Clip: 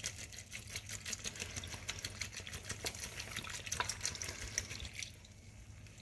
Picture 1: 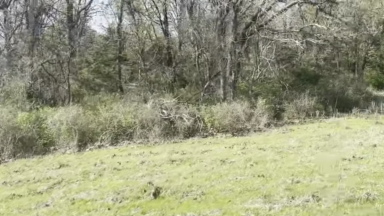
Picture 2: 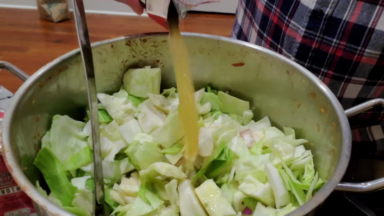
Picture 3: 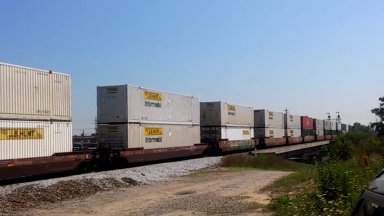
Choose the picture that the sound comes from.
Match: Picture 2